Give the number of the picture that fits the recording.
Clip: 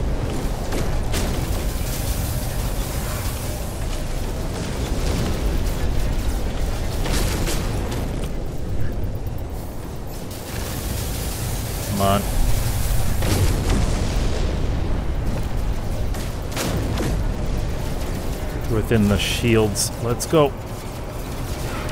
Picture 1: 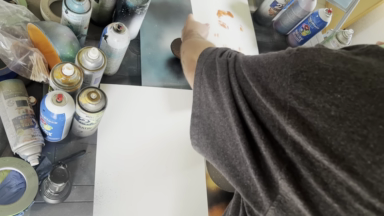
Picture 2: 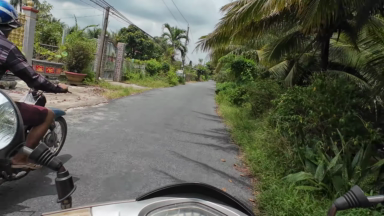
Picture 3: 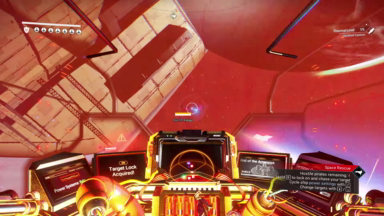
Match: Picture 3